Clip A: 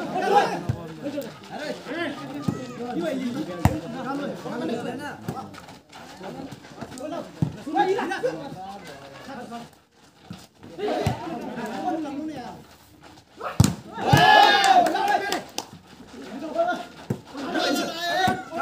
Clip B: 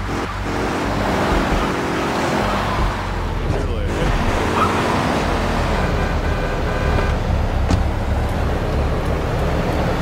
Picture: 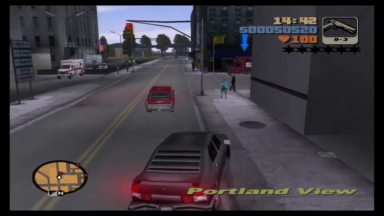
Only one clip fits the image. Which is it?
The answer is B